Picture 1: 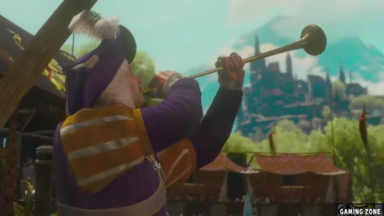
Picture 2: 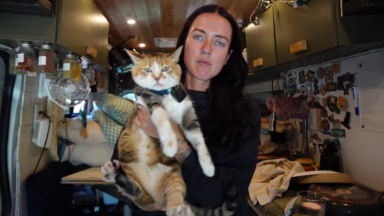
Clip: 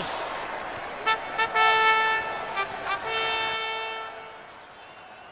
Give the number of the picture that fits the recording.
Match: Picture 1